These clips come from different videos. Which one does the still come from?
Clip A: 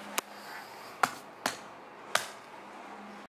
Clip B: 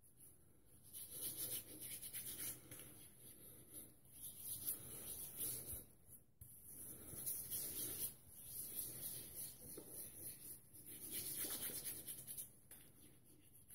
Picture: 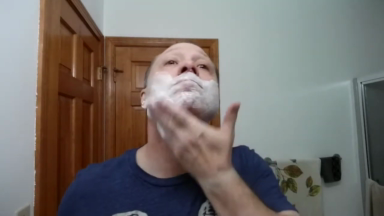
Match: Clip B